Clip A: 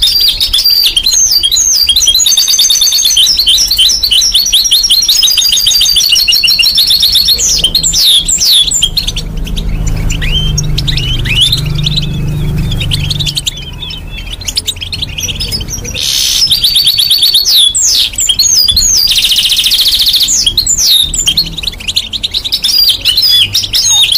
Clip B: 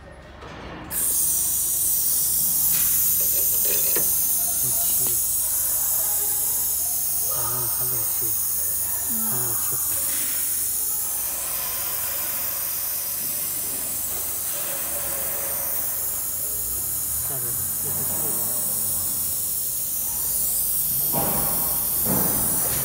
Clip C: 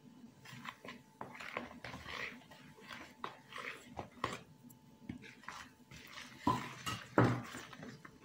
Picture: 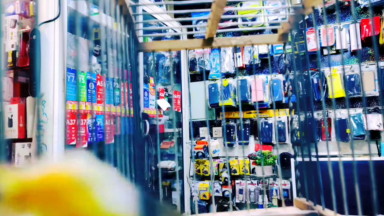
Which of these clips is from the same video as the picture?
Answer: A